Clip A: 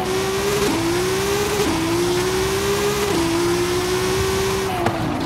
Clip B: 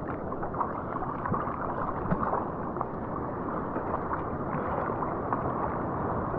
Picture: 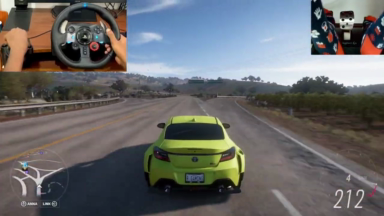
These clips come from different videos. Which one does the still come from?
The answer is A